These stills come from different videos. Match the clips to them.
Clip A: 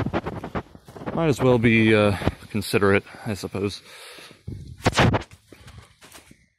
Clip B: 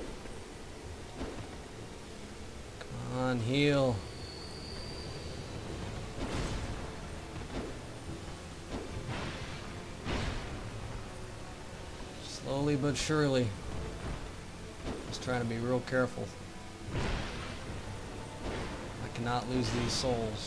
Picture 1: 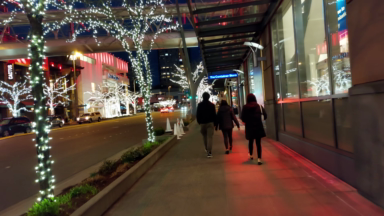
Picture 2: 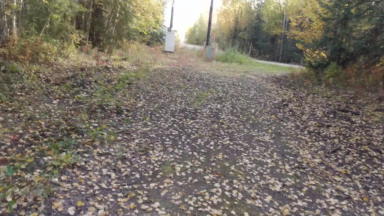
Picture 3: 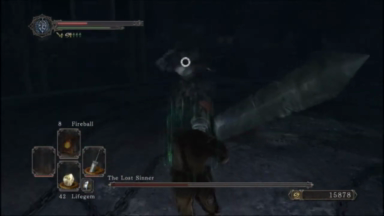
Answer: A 2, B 3